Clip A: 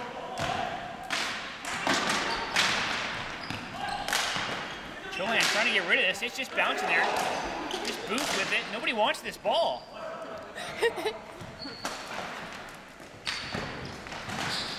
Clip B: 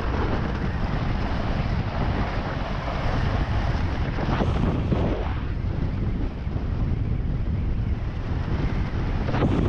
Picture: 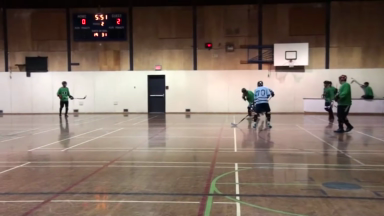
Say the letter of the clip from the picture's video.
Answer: A